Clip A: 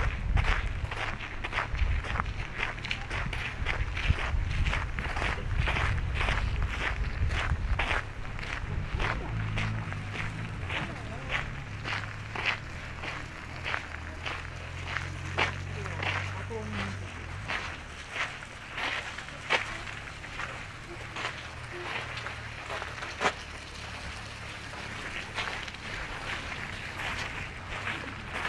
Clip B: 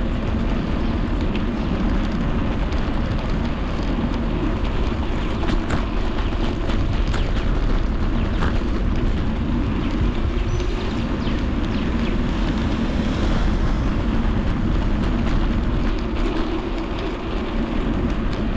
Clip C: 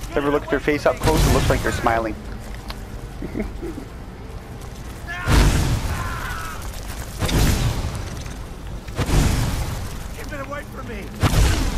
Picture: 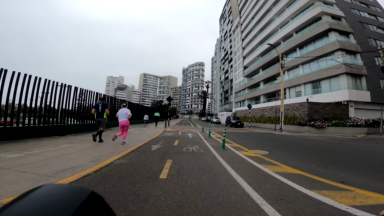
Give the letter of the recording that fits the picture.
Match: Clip B